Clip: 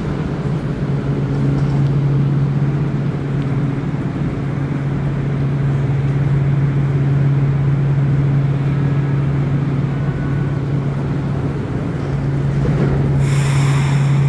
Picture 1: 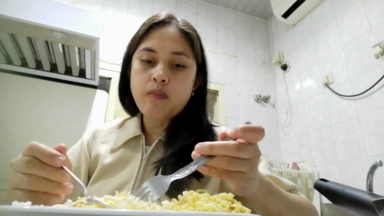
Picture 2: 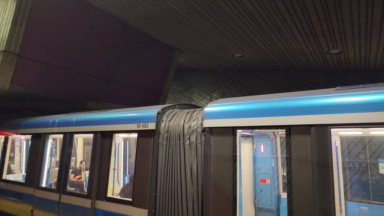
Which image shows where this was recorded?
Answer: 2